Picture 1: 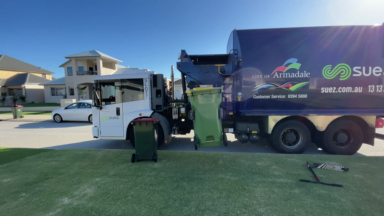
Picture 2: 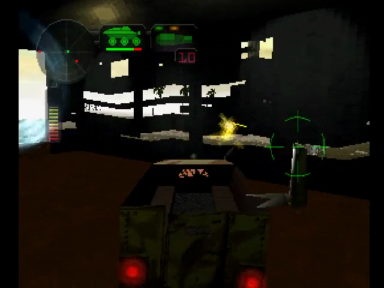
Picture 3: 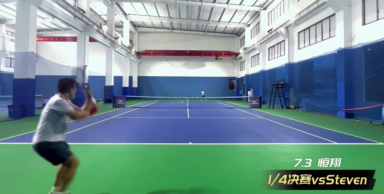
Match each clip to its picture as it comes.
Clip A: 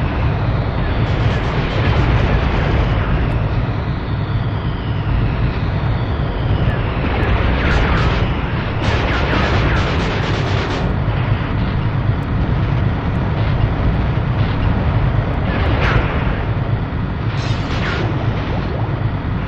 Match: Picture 2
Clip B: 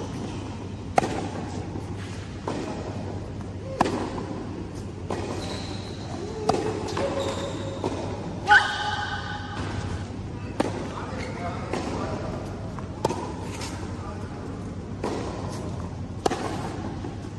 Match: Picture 3